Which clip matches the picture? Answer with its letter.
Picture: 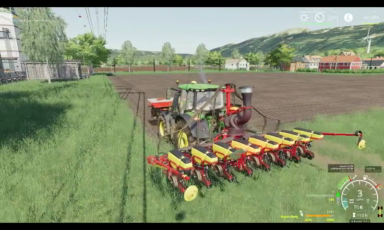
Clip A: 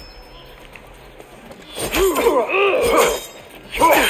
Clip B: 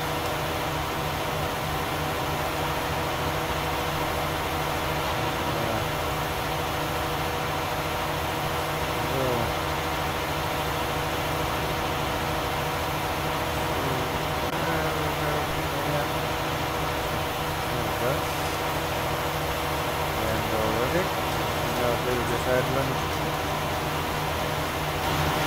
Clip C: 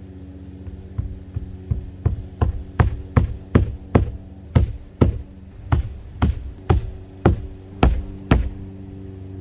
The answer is B